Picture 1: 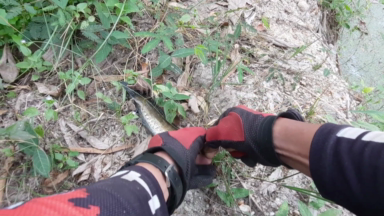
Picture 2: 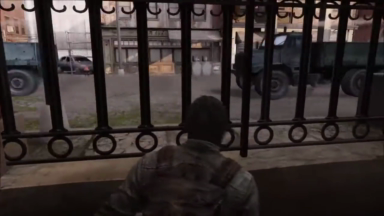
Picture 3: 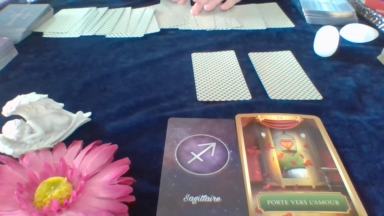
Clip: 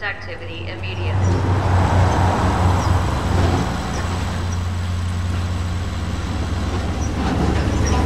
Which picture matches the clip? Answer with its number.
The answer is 2